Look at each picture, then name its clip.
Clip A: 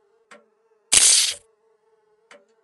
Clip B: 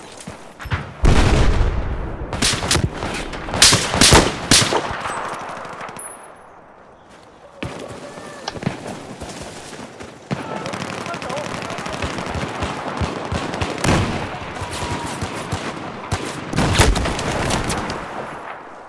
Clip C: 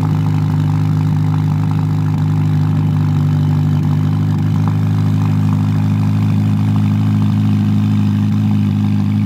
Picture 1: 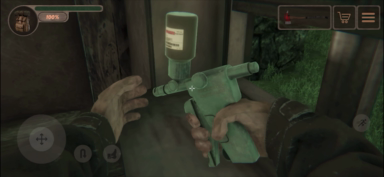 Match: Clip A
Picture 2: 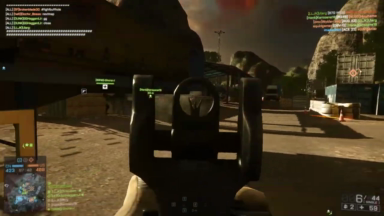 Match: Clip B